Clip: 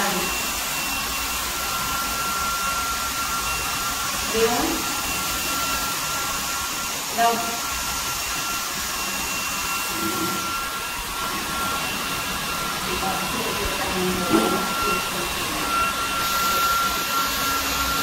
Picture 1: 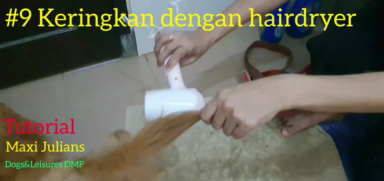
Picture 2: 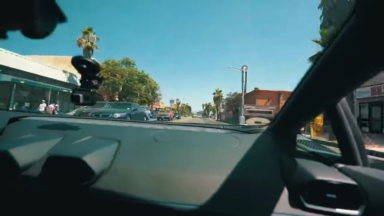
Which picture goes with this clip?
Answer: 1